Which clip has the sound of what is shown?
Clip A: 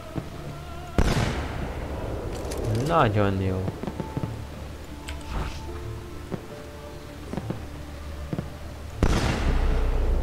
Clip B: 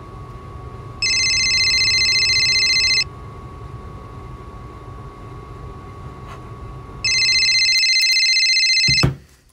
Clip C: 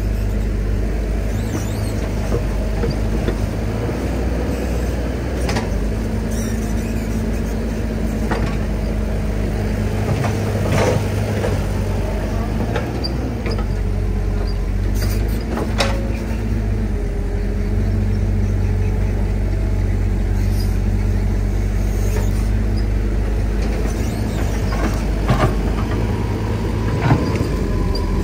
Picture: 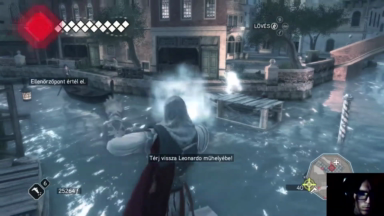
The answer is A